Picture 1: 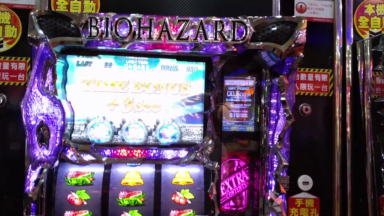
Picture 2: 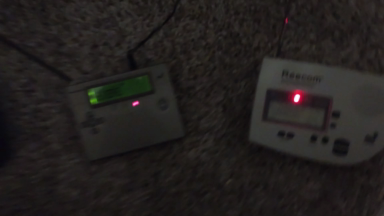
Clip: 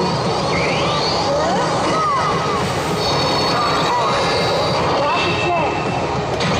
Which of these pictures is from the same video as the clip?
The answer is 1